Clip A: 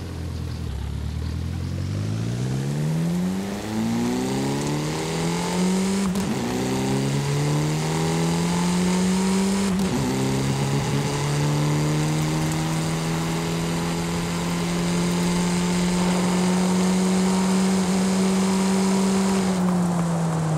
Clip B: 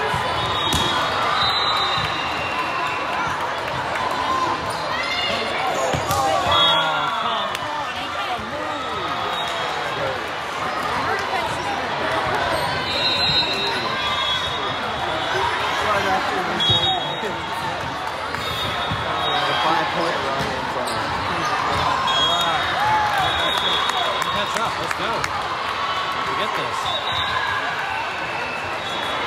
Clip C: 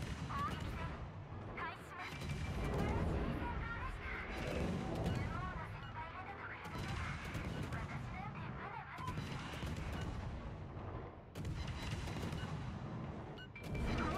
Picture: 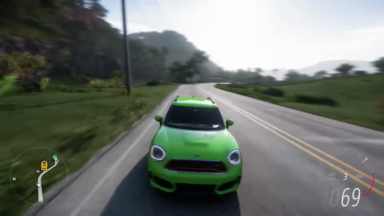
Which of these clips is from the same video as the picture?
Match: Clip A